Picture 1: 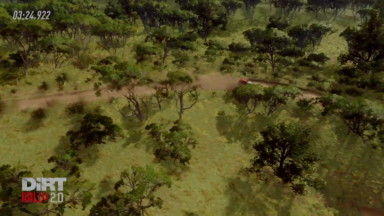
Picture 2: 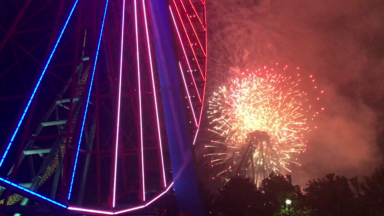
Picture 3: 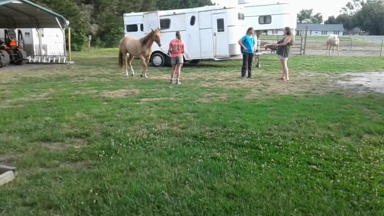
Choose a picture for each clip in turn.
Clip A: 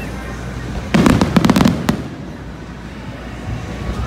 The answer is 2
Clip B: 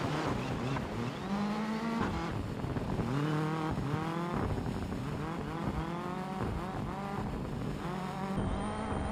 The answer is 1